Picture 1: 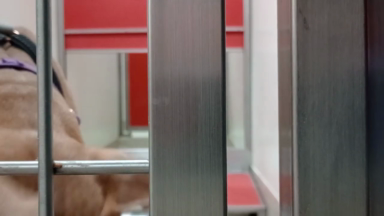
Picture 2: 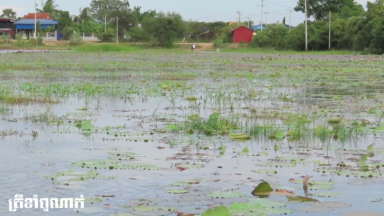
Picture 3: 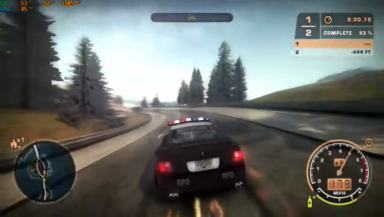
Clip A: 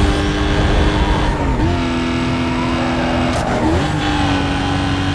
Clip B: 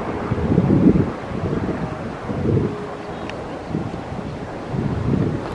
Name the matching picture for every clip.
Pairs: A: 3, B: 2